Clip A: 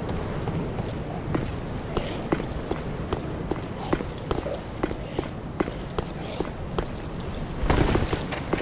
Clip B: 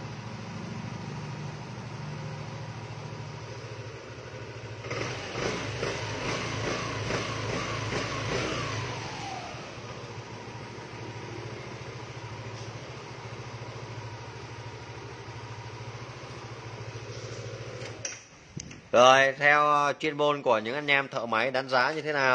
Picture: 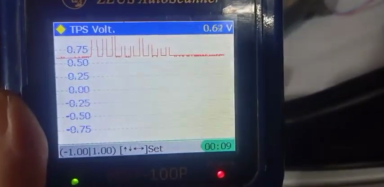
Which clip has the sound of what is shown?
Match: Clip B